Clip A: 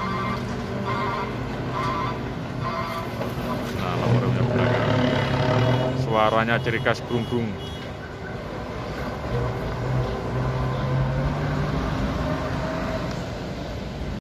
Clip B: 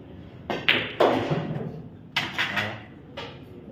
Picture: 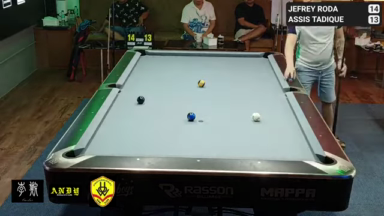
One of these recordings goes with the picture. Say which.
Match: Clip B